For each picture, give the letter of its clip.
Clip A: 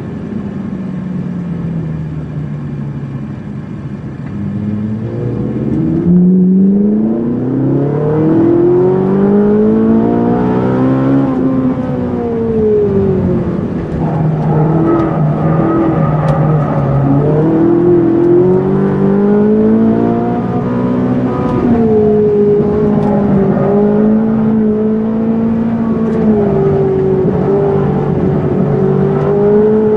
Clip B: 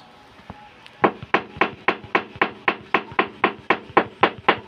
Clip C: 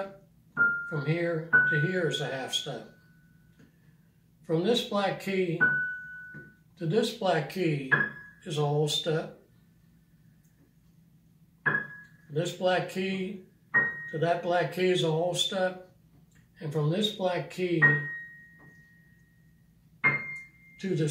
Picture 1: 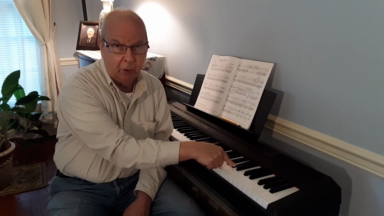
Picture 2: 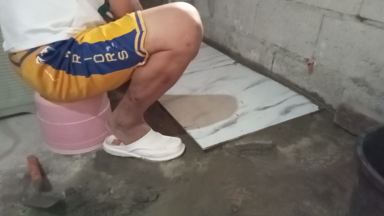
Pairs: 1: C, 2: B